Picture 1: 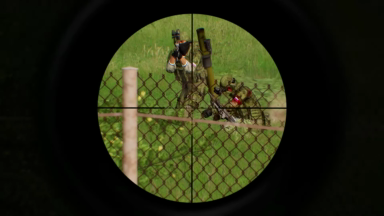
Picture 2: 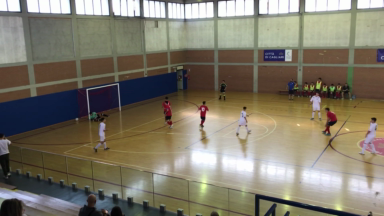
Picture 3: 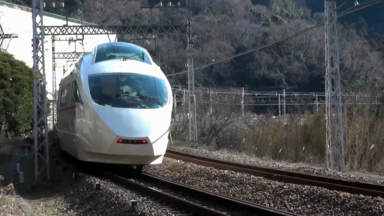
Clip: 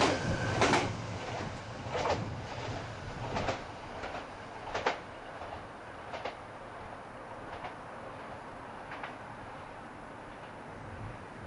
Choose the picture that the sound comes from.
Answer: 3